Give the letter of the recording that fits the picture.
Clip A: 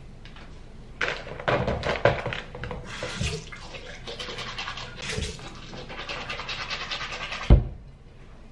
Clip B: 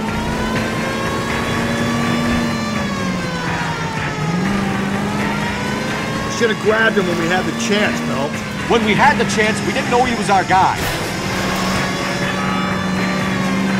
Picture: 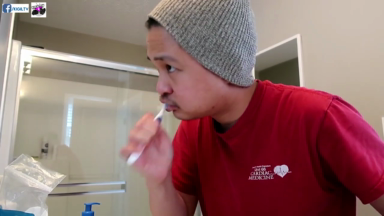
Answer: A